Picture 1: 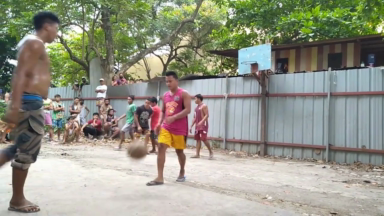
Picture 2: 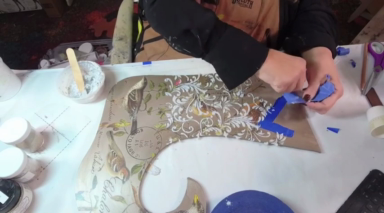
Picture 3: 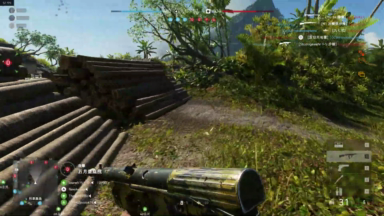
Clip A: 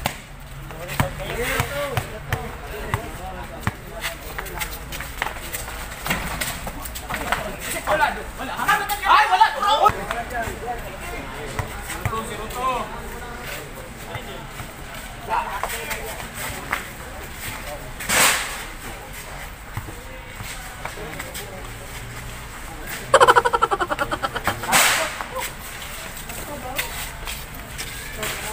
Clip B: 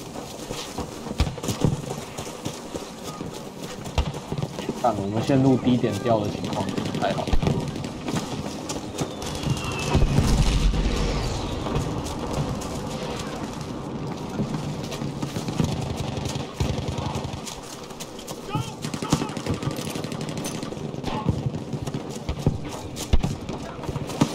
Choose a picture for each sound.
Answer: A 1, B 3